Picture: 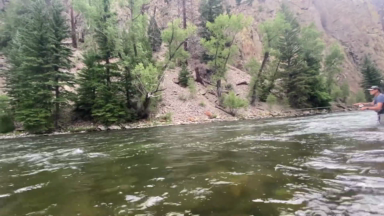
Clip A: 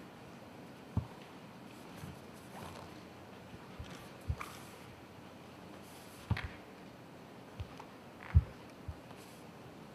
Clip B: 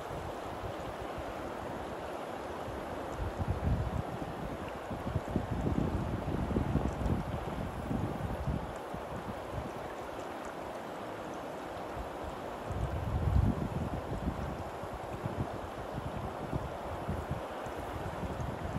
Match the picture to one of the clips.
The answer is B